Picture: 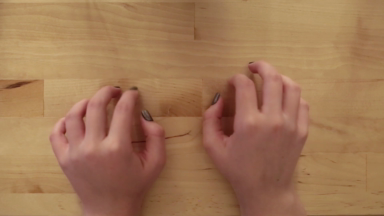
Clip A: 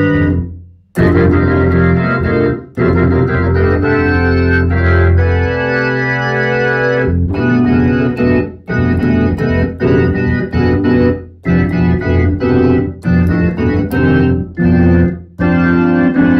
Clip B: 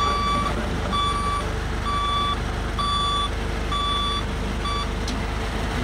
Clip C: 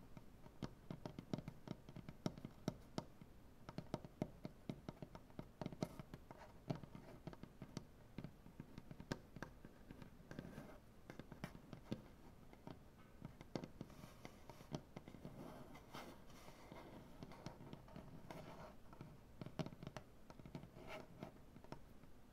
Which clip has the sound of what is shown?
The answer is C